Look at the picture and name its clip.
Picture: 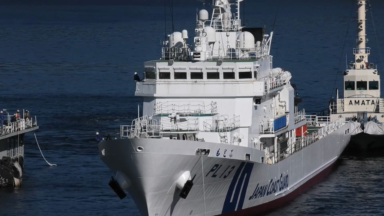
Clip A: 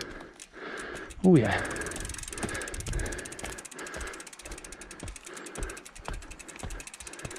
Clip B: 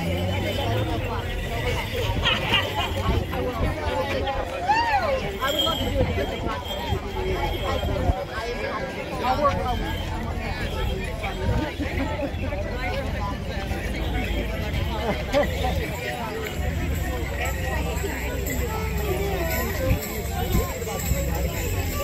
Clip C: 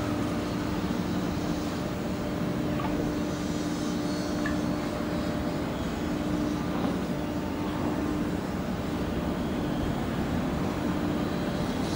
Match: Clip C